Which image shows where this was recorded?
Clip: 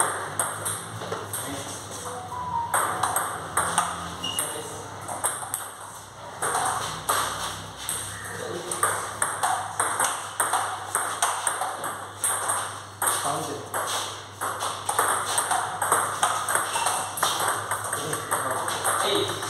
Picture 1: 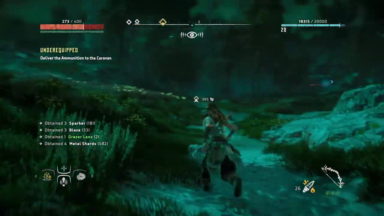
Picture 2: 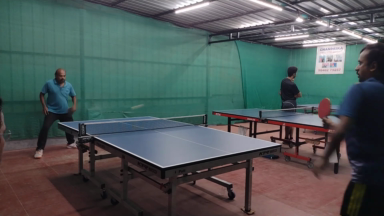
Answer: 2